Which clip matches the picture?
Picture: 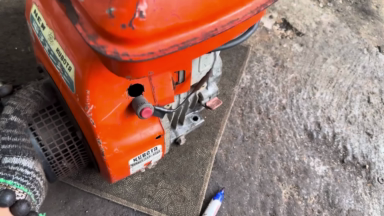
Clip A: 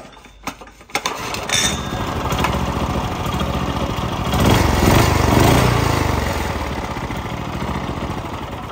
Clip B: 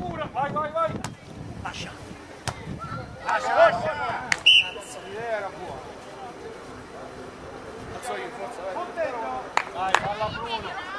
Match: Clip A